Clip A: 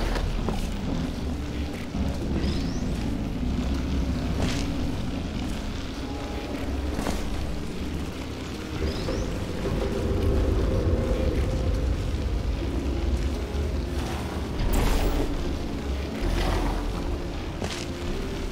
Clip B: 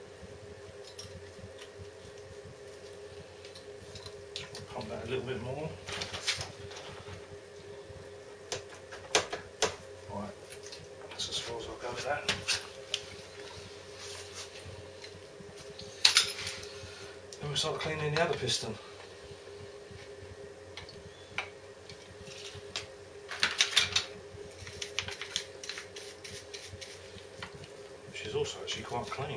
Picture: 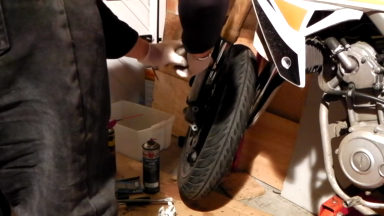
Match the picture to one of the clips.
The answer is B